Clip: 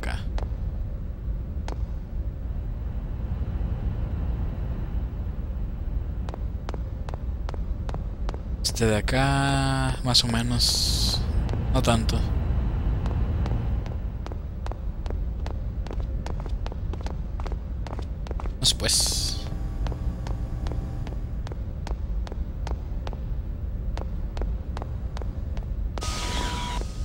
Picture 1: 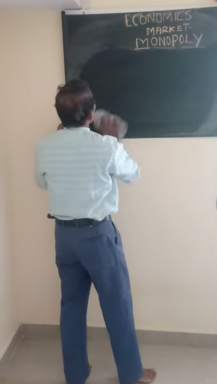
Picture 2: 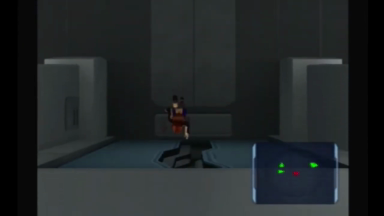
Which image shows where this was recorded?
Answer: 2